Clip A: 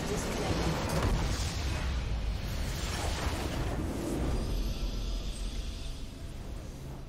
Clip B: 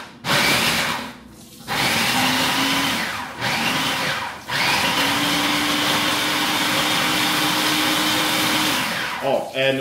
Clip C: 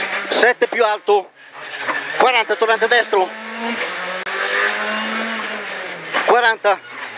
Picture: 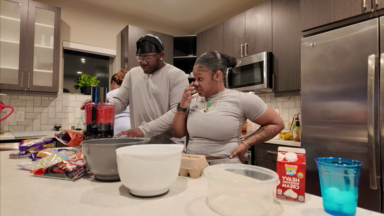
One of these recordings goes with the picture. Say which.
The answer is B